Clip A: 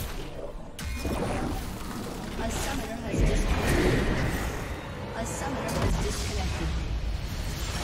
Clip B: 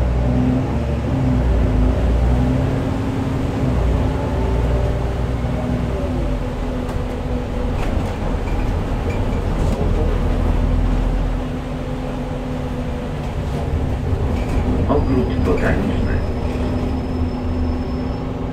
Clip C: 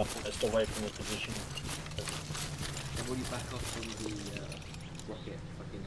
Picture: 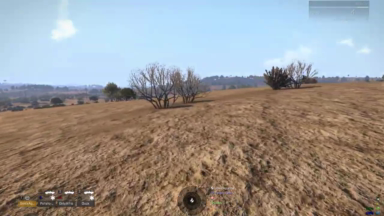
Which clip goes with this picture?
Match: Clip C